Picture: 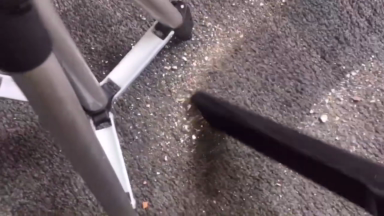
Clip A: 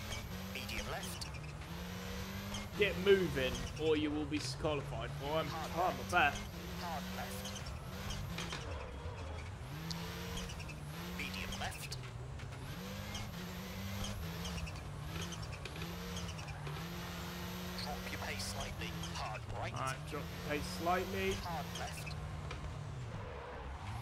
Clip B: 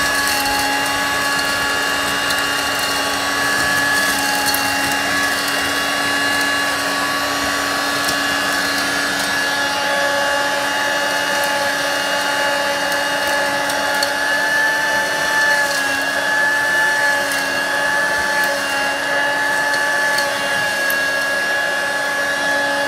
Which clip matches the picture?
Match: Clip B